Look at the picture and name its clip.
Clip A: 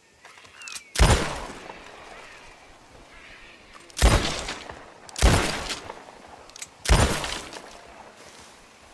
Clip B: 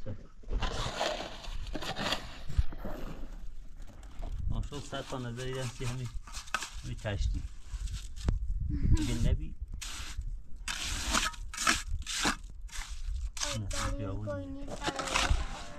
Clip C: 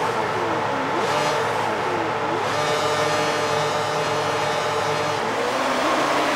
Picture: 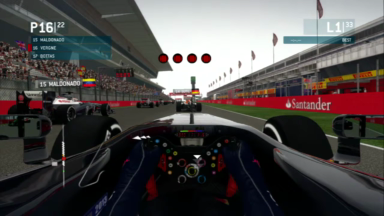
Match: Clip C